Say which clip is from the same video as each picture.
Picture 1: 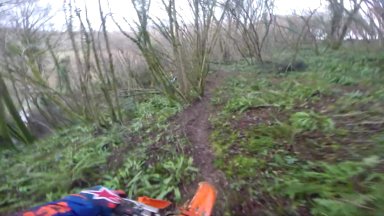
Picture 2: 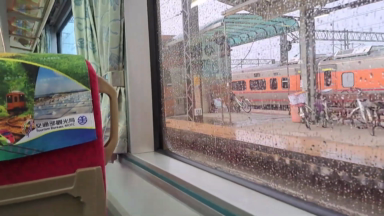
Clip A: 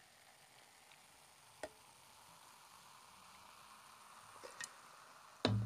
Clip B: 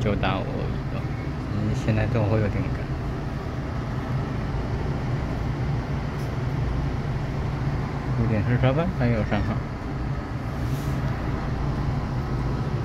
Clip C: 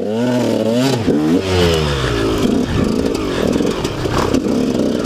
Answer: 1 C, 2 B